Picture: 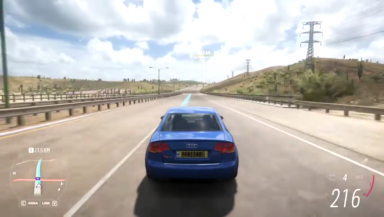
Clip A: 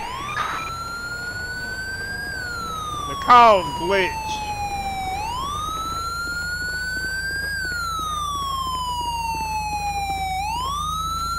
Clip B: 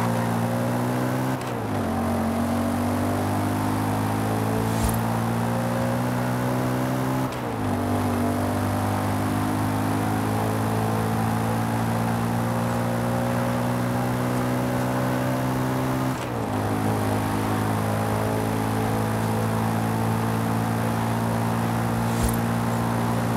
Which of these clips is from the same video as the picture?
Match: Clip B